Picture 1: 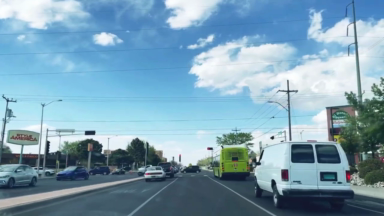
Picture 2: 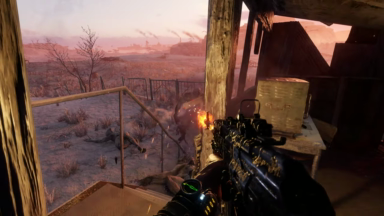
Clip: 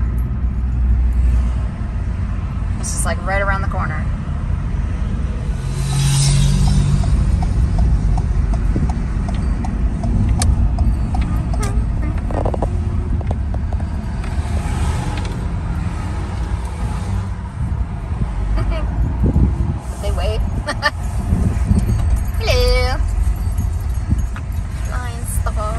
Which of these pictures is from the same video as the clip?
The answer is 1